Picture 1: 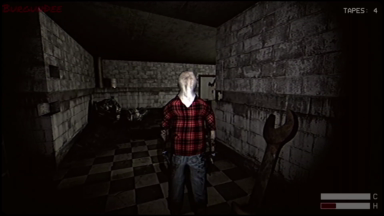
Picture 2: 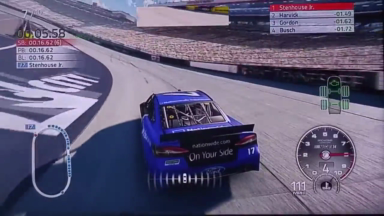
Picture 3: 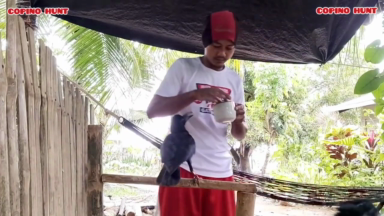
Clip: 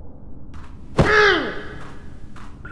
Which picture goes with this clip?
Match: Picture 1